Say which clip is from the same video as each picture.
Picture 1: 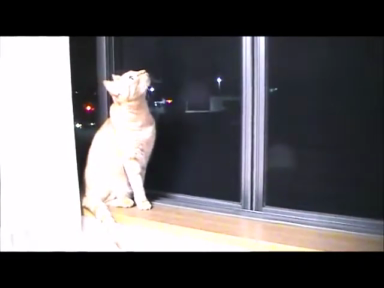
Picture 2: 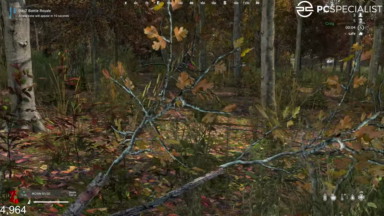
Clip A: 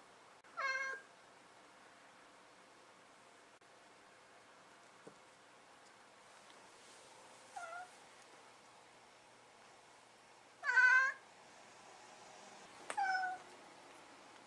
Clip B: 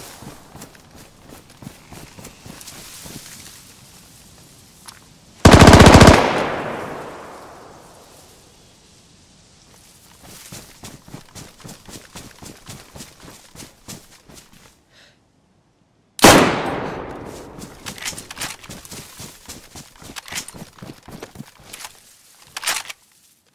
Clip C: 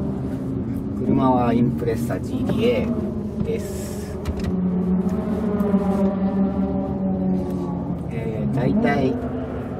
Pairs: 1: A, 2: B